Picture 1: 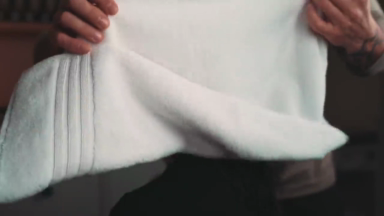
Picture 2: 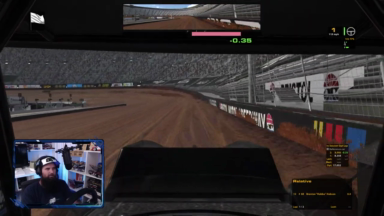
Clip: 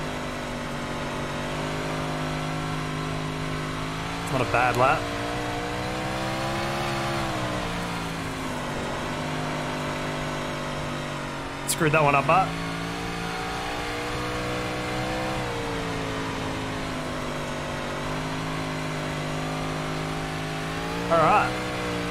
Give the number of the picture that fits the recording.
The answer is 2